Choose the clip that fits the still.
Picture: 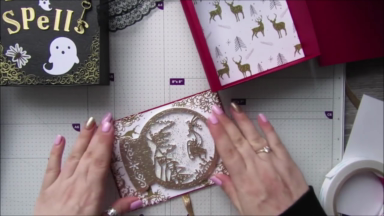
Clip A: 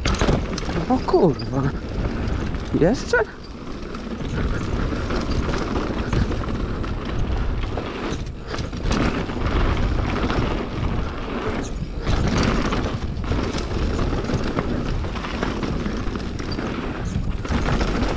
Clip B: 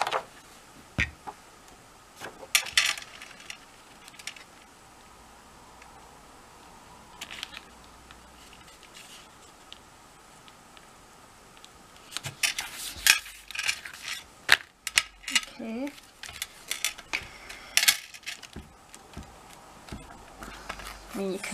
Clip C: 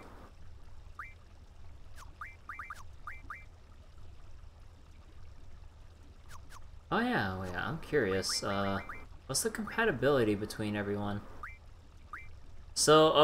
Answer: B